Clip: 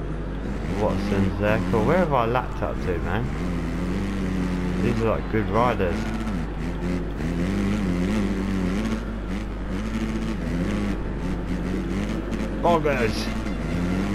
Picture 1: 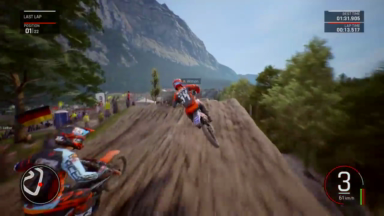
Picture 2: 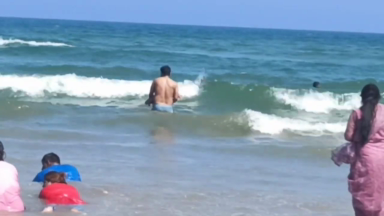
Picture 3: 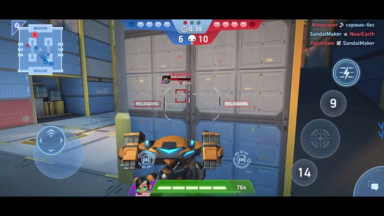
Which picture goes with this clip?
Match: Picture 1